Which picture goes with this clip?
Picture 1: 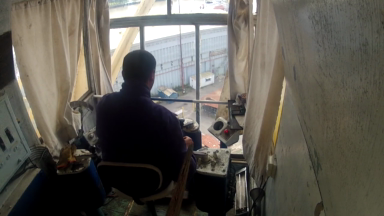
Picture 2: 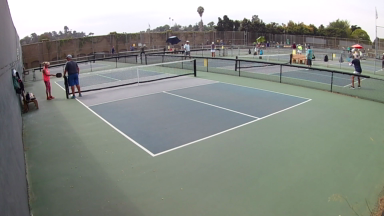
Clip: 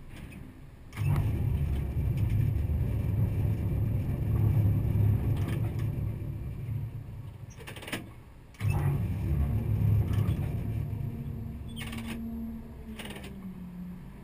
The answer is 1